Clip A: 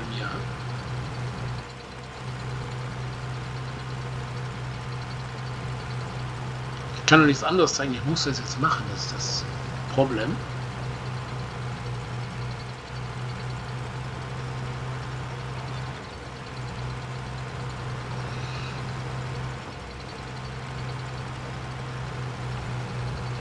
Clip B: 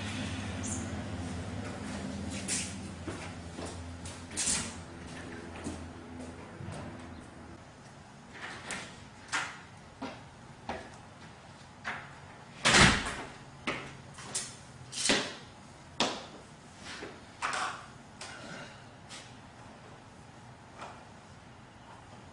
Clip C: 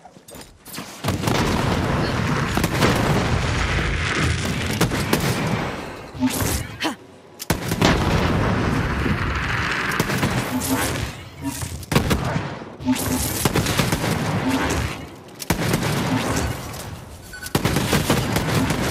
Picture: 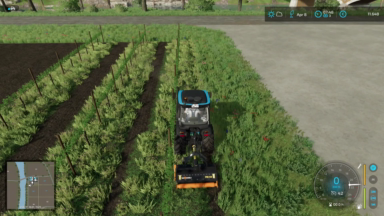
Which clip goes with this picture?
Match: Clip A